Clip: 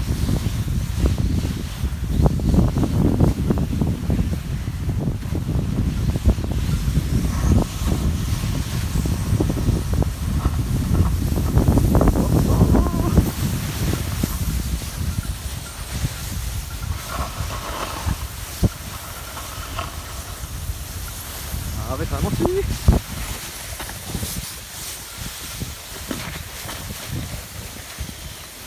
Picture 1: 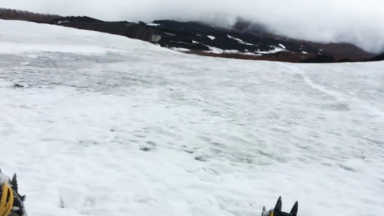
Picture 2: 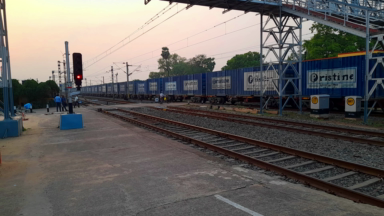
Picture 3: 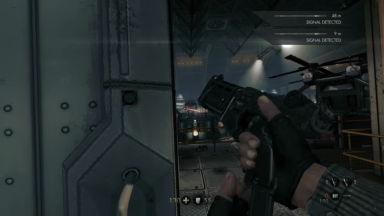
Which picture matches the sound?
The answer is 1